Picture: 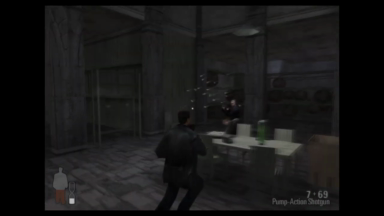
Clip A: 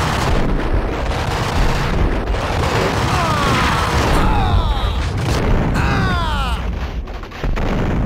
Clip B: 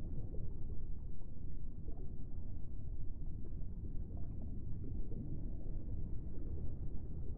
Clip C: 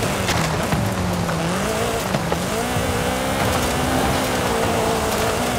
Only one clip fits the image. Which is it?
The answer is A